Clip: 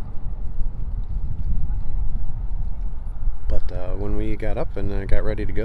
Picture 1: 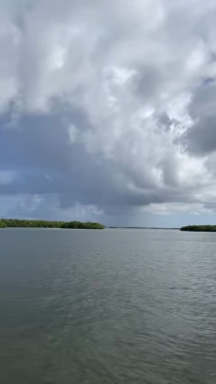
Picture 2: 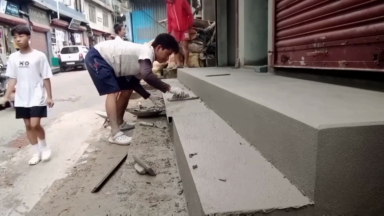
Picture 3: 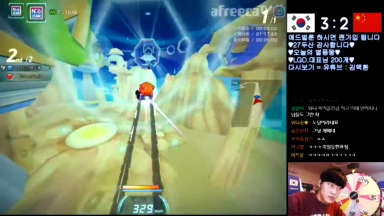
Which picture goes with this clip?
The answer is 1